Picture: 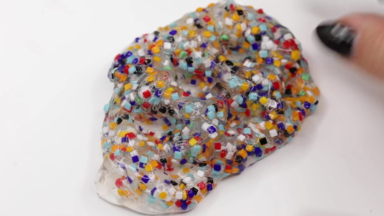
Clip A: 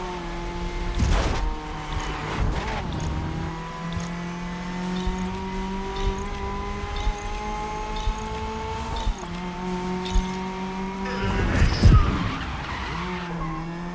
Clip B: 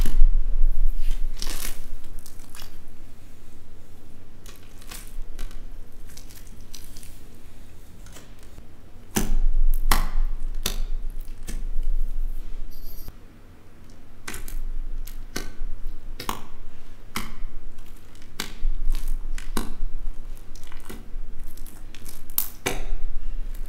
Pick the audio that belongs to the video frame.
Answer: B